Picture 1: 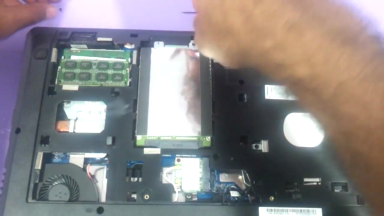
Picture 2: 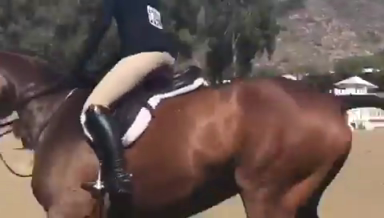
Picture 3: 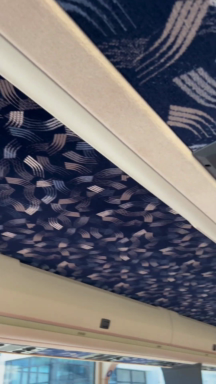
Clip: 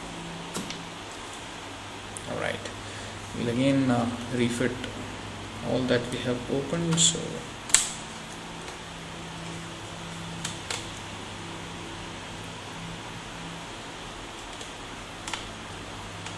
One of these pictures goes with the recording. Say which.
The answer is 1